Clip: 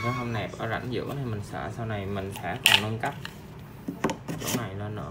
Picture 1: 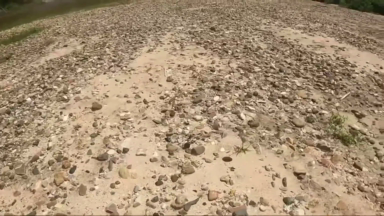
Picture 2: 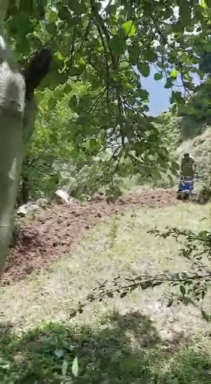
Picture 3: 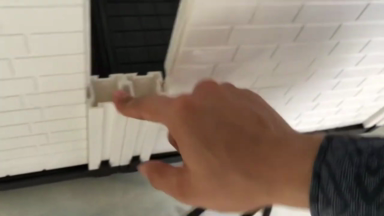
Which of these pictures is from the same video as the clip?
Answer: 3